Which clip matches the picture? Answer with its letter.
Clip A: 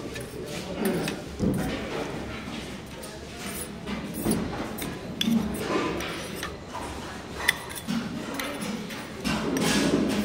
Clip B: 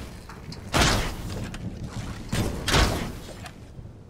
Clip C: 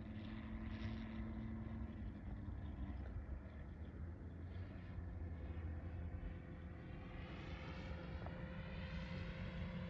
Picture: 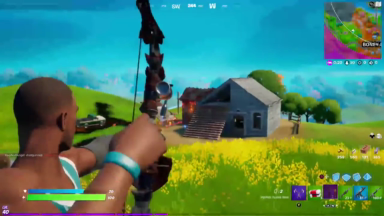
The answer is B